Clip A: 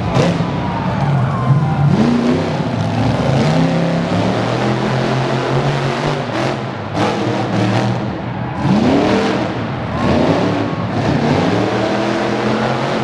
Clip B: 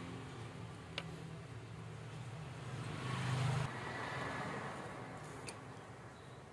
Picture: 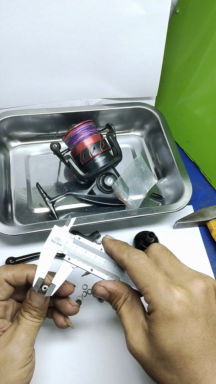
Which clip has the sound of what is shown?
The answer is B